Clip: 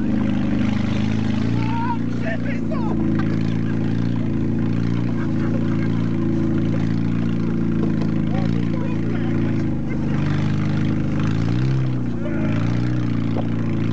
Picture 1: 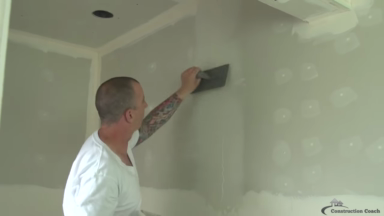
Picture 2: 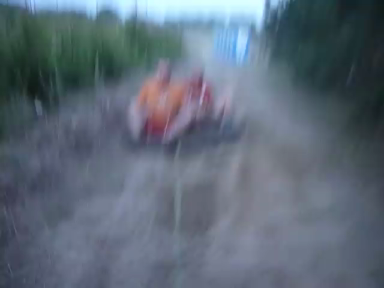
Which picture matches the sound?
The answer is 2